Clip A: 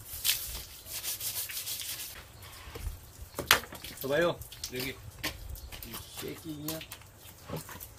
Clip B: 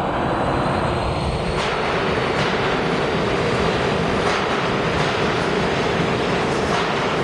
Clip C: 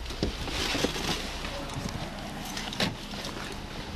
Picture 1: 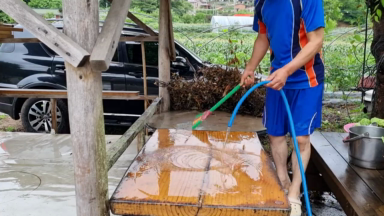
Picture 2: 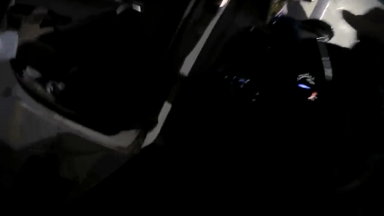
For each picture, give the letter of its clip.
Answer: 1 A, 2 C